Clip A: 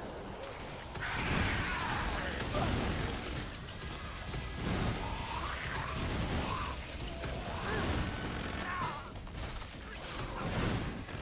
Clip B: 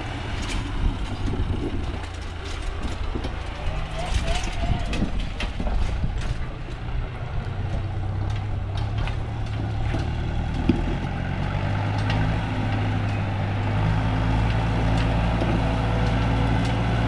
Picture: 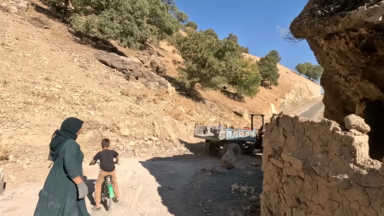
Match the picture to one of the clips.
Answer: B